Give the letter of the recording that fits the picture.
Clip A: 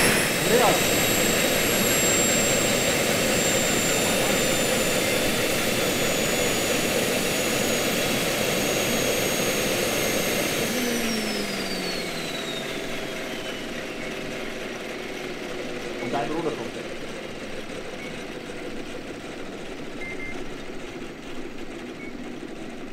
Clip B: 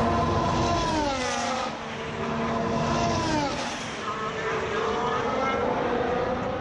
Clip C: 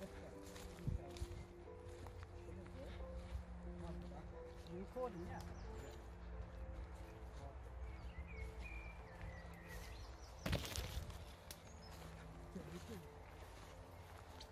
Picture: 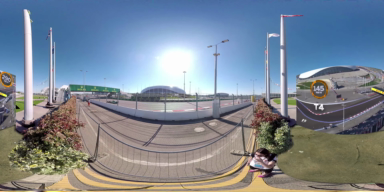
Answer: B